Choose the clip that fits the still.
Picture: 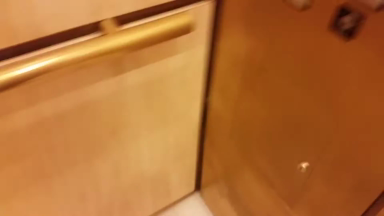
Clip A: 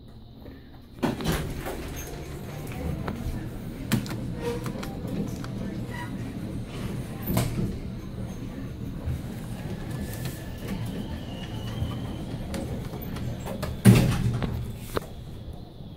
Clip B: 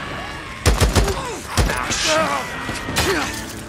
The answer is A